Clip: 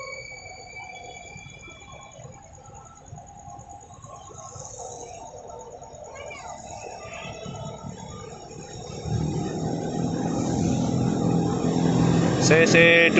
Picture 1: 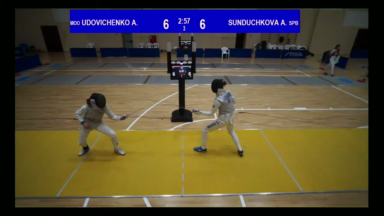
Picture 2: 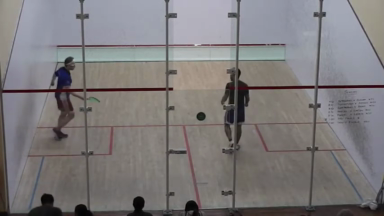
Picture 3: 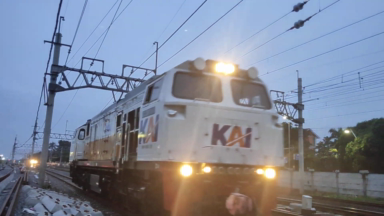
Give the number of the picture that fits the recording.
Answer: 3